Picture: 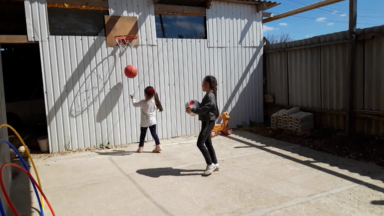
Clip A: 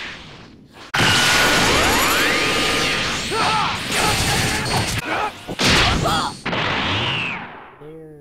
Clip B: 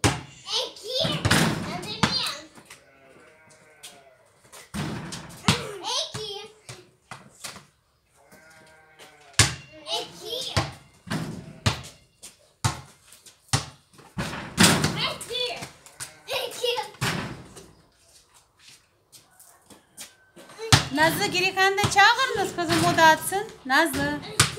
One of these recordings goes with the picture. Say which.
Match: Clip B